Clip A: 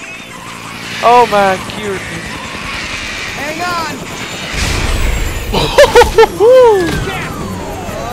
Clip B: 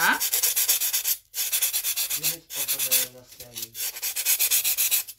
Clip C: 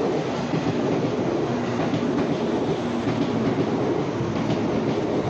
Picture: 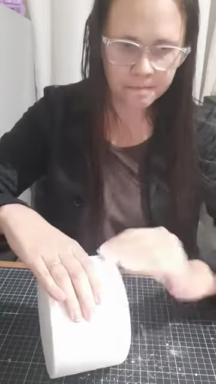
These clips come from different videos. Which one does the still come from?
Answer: B